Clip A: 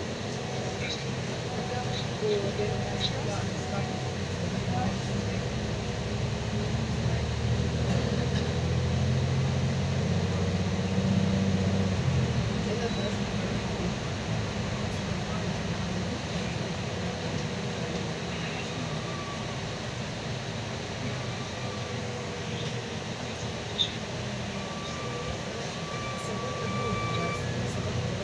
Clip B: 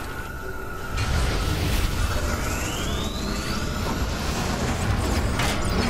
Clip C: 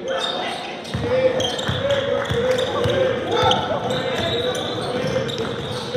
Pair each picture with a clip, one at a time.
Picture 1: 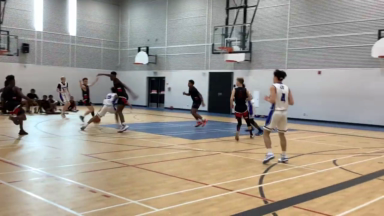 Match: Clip C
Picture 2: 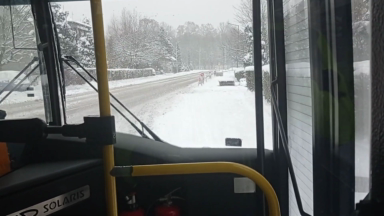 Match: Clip A